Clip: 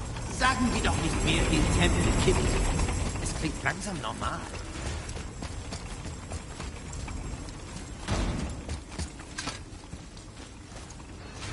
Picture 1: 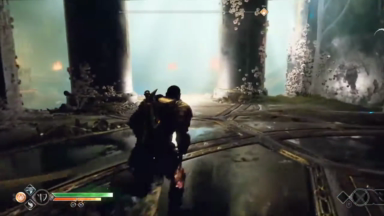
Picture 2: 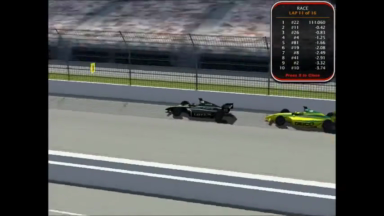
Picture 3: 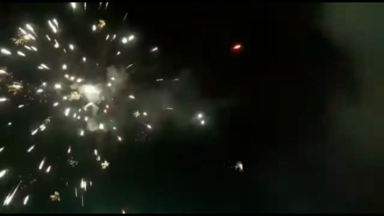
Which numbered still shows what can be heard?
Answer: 1